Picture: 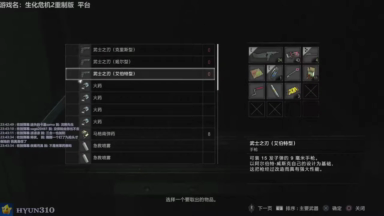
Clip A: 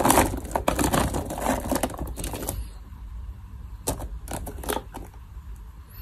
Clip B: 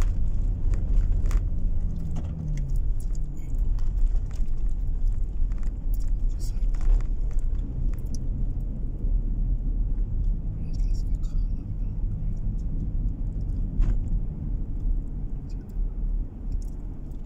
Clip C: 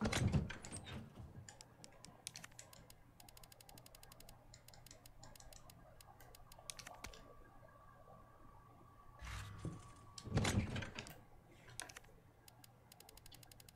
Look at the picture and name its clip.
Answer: C